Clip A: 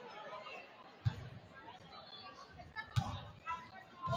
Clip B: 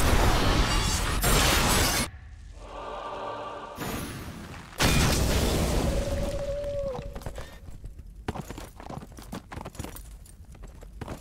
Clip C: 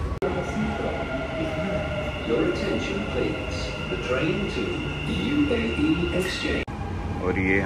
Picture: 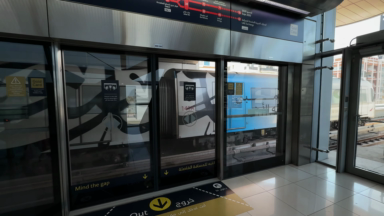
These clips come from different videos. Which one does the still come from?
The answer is C